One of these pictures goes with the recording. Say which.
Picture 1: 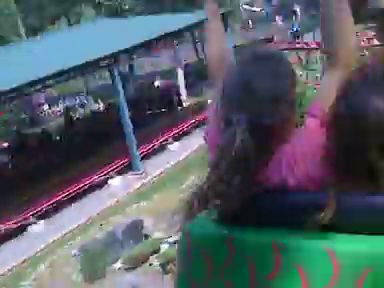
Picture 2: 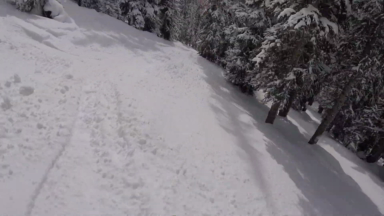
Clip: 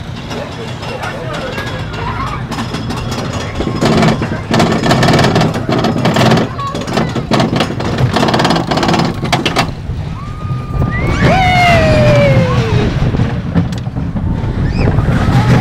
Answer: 1